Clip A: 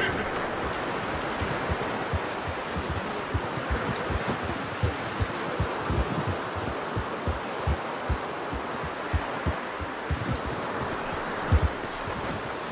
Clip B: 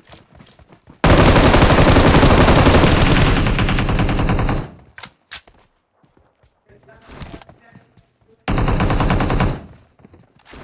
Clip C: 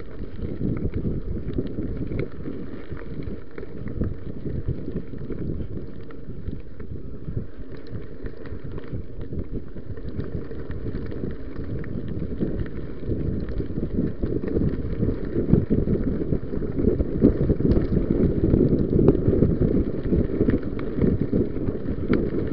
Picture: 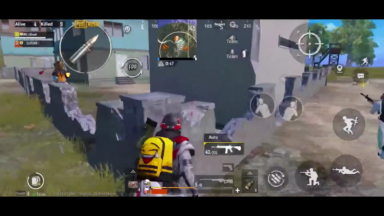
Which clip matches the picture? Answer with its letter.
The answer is B